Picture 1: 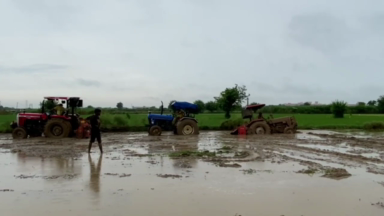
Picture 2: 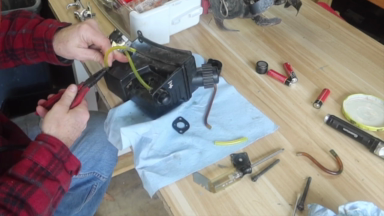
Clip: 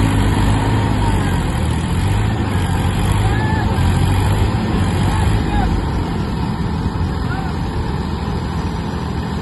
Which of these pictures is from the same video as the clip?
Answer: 1